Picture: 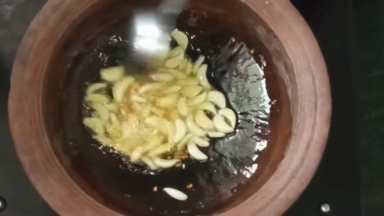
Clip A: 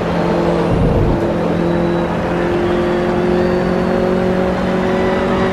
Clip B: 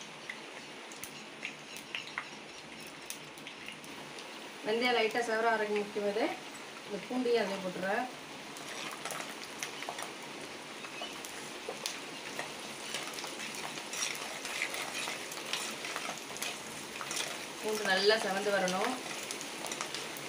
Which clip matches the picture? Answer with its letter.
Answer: B